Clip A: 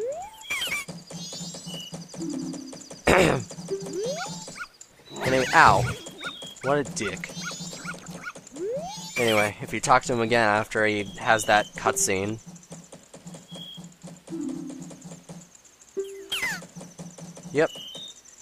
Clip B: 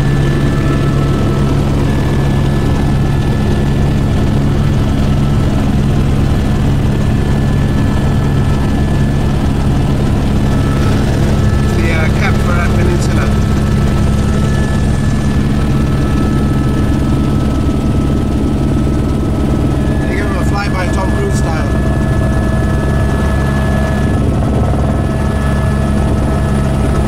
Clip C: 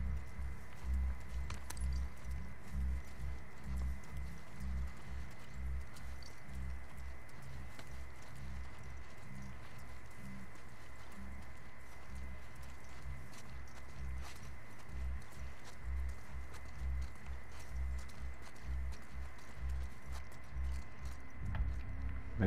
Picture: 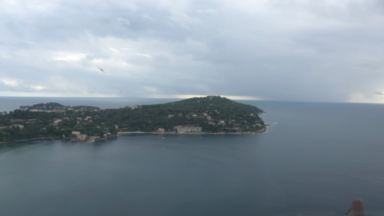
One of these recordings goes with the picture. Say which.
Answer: B